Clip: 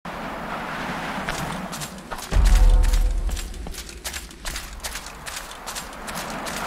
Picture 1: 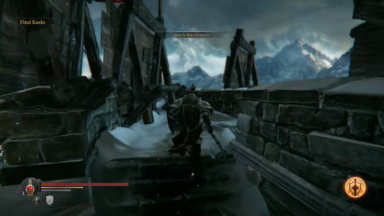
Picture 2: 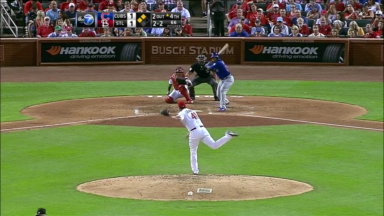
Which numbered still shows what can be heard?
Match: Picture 1